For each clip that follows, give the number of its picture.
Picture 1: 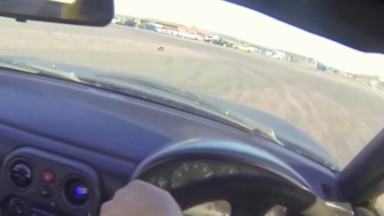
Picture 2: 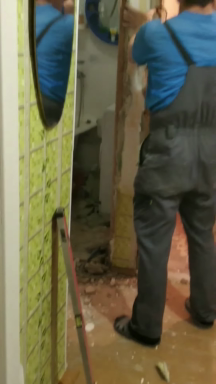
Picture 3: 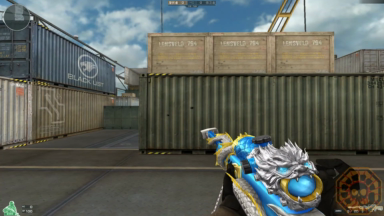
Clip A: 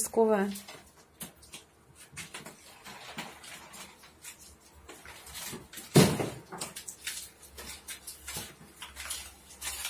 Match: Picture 2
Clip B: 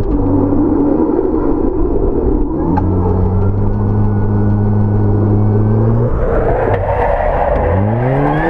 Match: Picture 1